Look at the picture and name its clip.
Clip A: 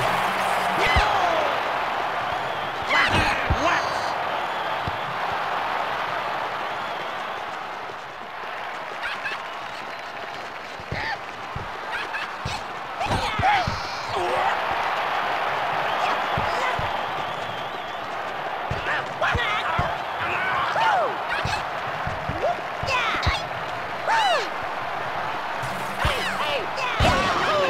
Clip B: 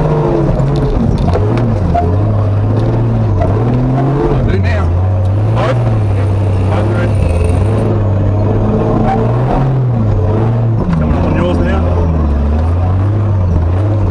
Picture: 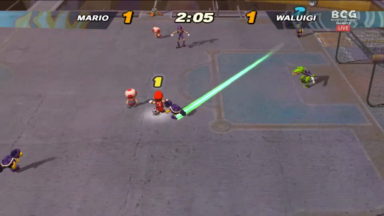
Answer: A